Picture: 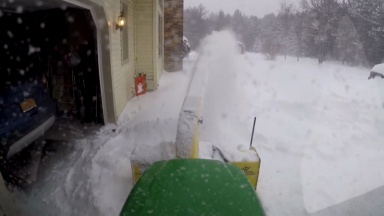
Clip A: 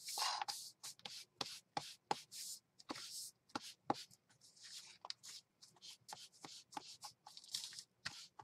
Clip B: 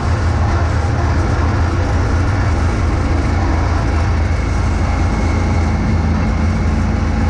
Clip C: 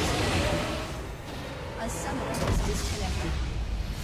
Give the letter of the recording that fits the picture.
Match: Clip B